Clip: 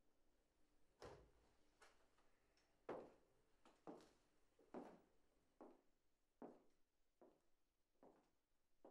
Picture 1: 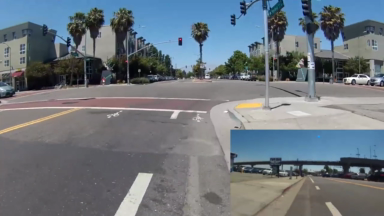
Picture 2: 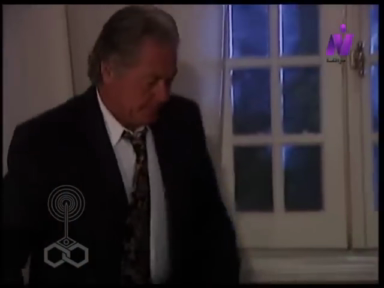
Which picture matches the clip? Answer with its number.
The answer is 2